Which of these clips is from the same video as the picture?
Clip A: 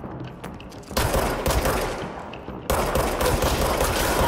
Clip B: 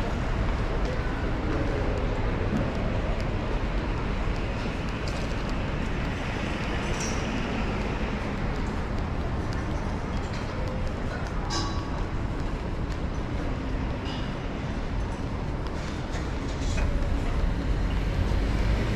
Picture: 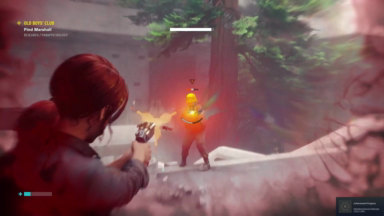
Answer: A